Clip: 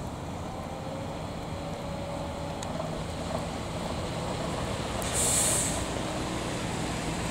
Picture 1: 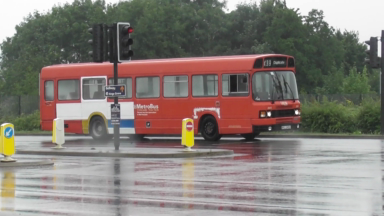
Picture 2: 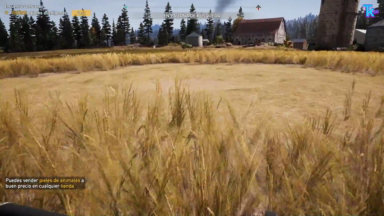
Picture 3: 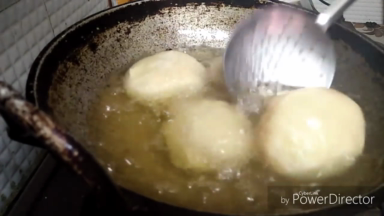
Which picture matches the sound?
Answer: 1